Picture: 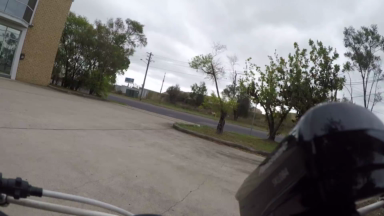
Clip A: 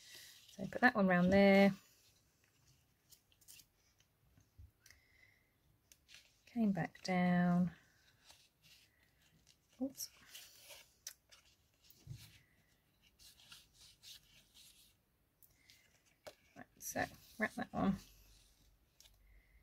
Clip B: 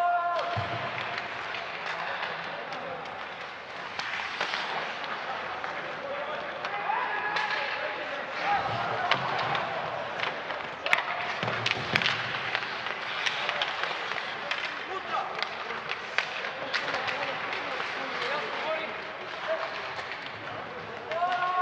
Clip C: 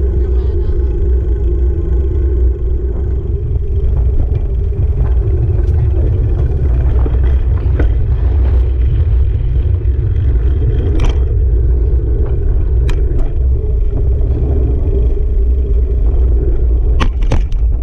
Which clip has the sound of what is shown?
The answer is C